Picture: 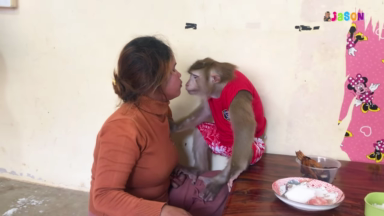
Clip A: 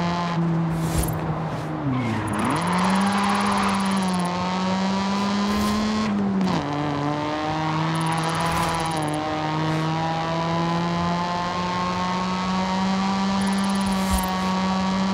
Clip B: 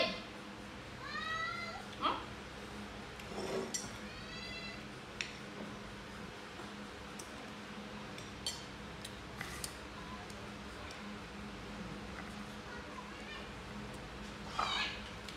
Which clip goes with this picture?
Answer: B